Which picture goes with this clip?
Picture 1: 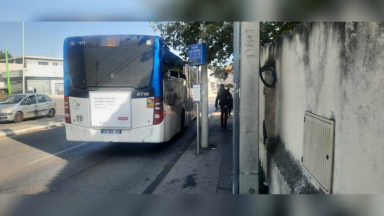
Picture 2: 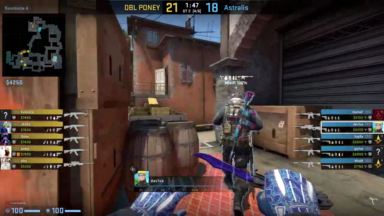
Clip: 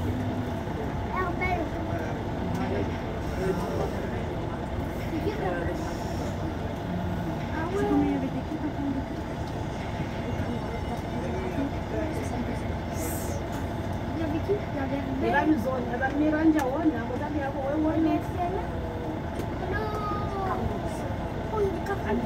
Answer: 1